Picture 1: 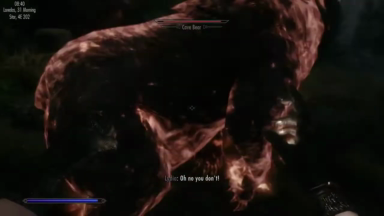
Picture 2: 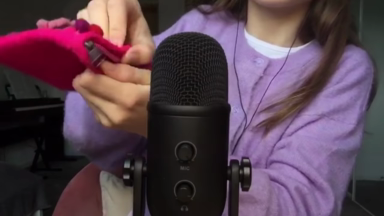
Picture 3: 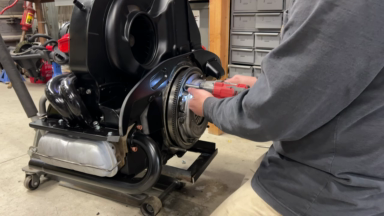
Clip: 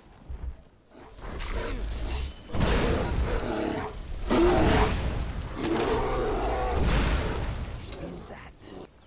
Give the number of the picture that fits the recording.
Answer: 1